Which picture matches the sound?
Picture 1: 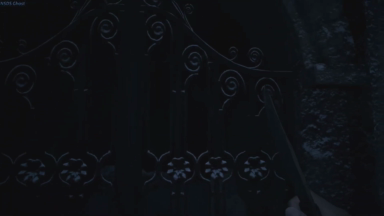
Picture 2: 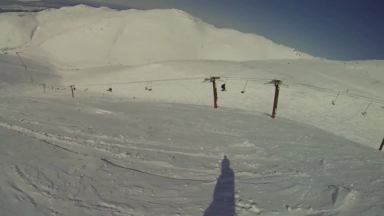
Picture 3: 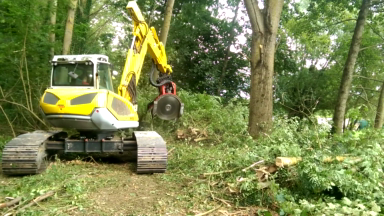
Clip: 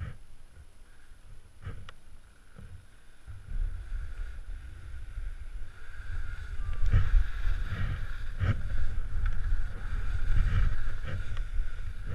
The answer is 2